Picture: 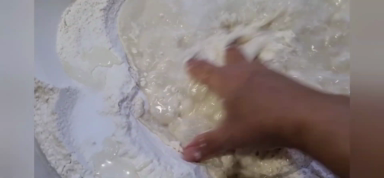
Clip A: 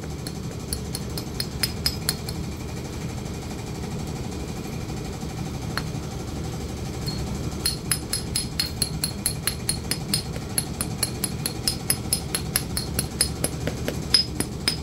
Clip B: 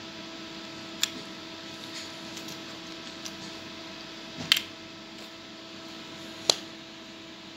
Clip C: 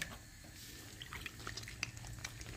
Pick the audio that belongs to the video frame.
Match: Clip C